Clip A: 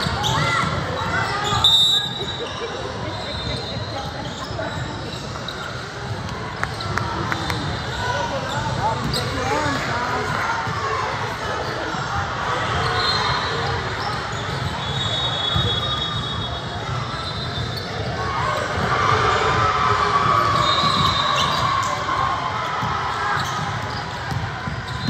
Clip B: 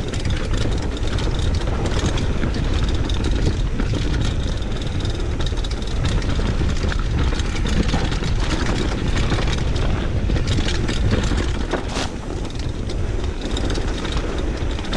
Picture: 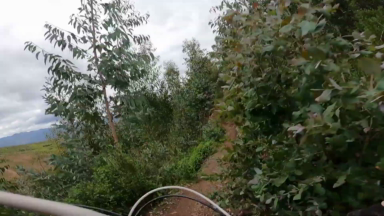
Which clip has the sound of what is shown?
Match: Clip B